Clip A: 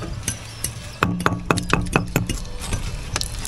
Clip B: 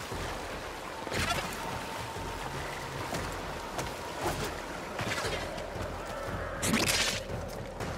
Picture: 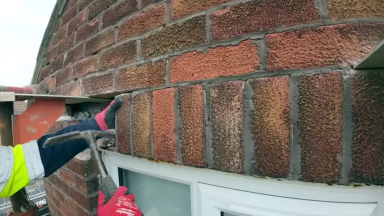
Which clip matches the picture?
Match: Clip A